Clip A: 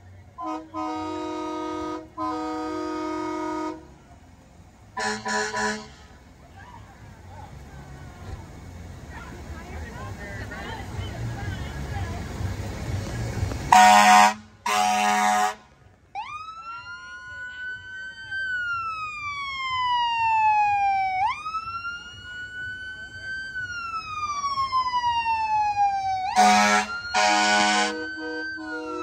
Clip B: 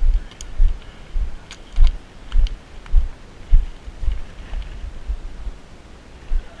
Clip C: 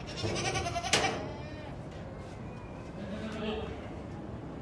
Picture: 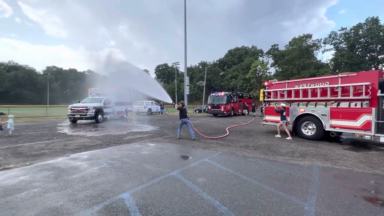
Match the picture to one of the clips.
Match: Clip A